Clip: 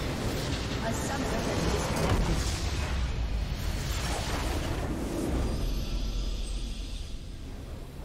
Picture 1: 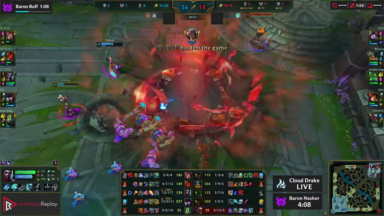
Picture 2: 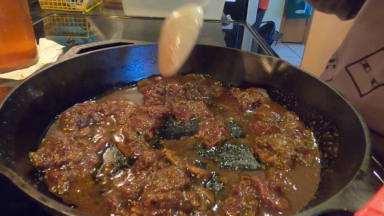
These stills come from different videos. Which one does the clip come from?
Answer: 1